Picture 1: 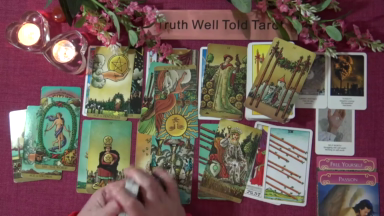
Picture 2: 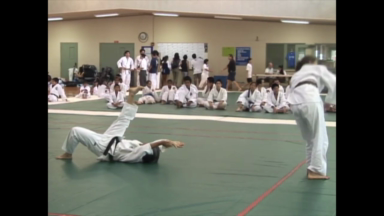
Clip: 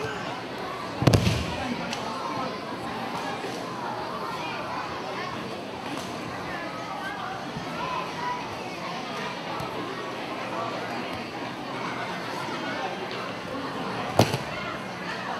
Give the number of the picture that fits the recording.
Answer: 2